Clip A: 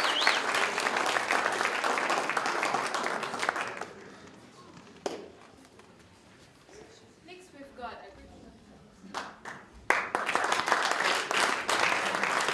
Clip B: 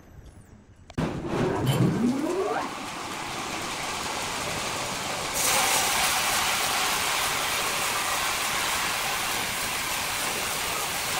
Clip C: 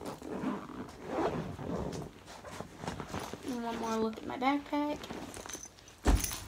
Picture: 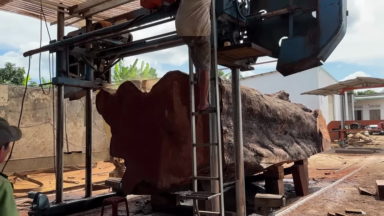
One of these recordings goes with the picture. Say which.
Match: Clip B